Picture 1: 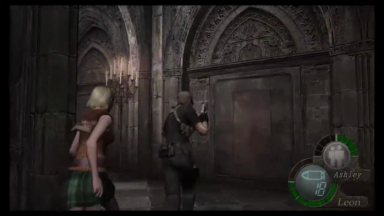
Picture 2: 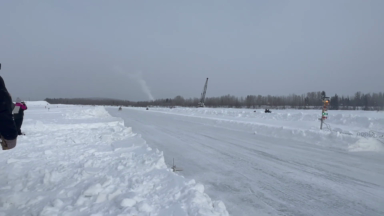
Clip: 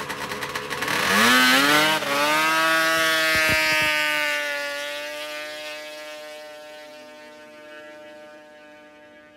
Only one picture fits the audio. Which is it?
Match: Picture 2